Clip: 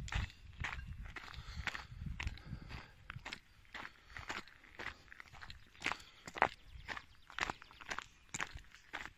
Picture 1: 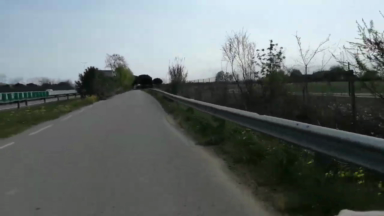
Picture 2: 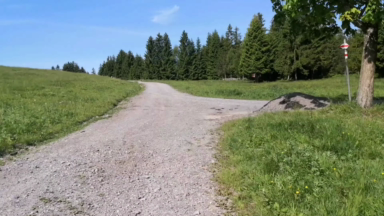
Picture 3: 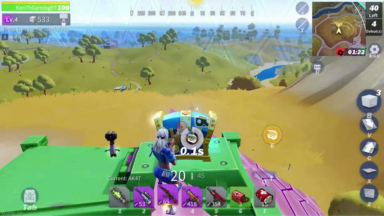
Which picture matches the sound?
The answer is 2